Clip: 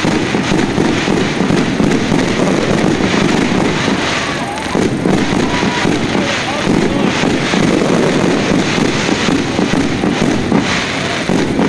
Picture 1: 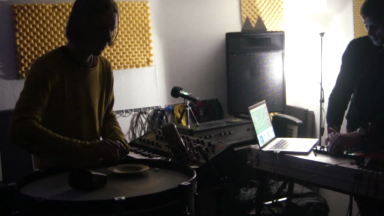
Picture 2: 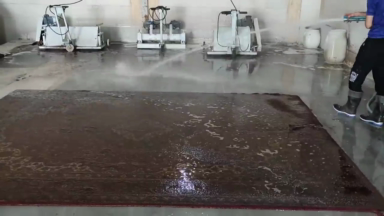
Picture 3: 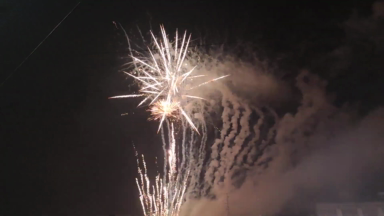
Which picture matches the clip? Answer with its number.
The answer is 3